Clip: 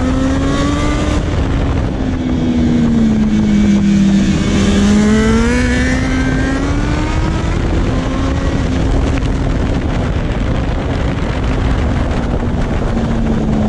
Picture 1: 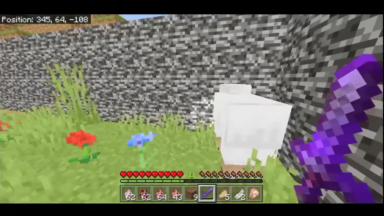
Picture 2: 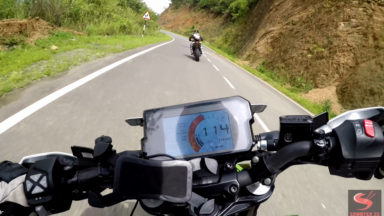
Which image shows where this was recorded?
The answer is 2